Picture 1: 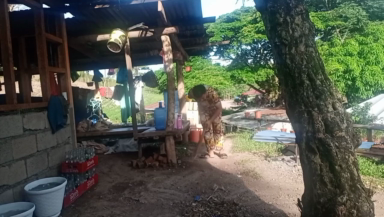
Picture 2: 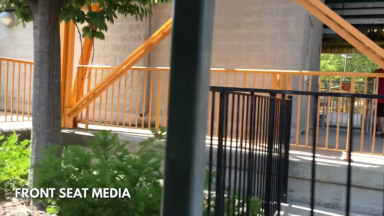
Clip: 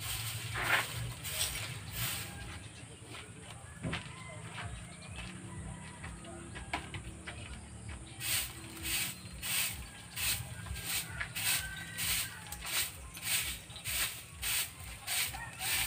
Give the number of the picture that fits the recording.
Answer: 1